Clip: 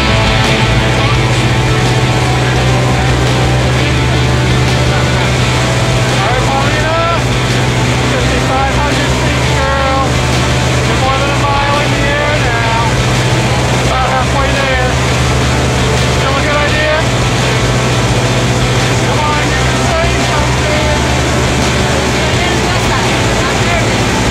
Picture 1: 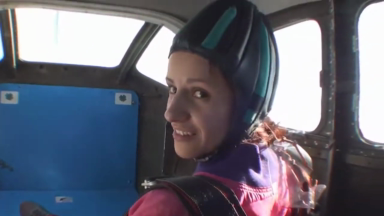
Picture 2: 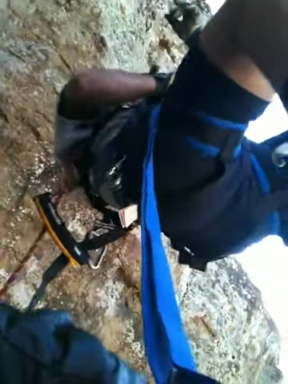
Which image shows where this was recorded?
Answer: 1